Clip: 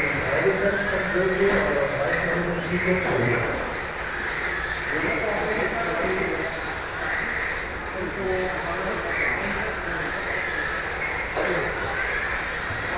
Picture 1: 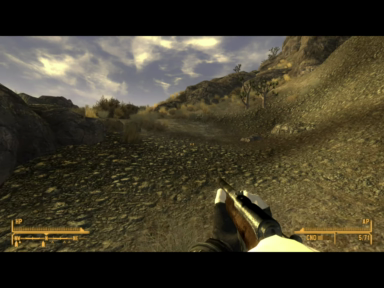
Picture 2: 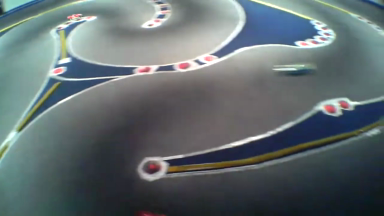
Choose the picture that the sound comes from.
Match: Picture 2